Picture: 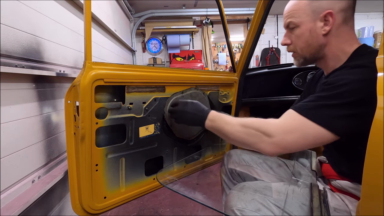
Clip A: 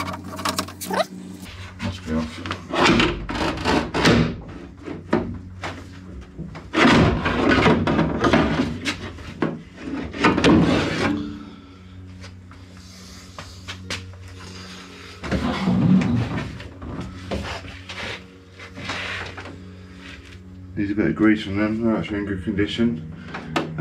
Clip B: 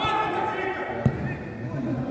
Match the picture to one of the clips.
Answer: A